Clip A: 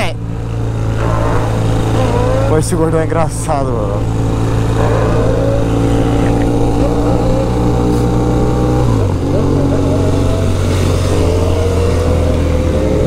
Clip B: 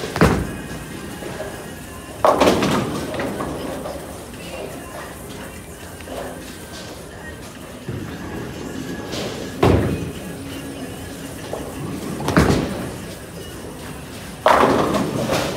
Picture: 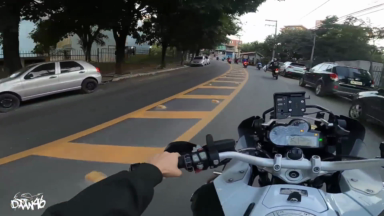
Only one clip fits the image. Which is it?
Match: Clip A